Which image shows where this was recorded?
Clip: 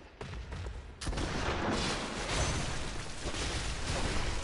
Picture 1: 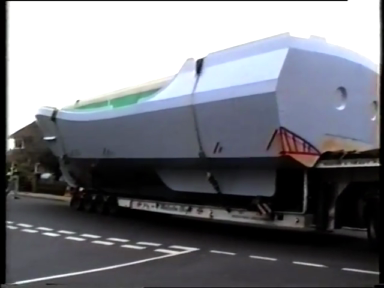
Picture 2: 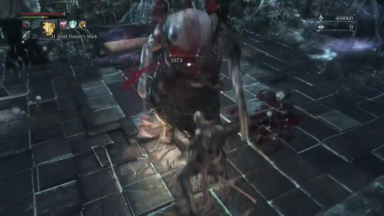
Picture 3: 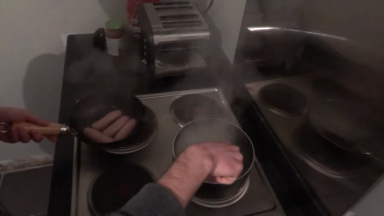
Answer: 2